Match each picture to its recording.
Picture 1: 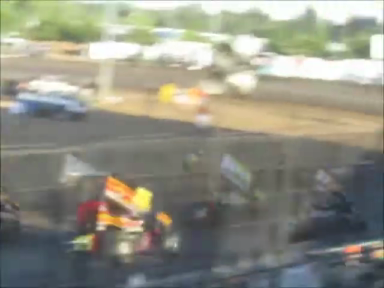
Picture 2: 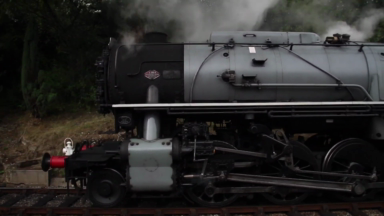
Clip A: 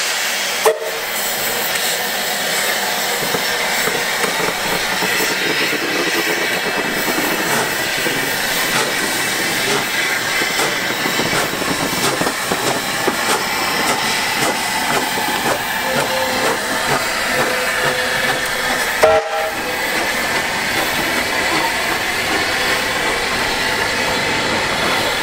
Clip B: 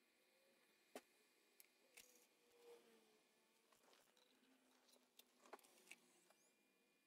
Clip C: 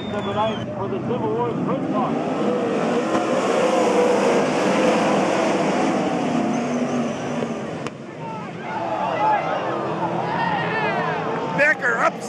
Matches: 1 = C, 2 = A